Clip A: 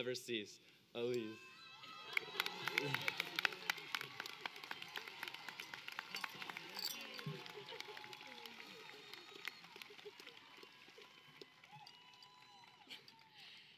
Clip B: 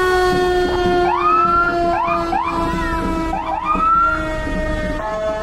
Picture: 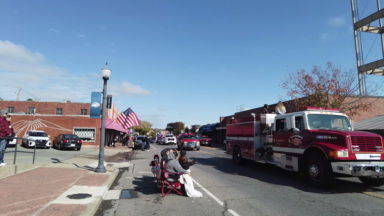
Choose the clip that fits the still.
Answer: B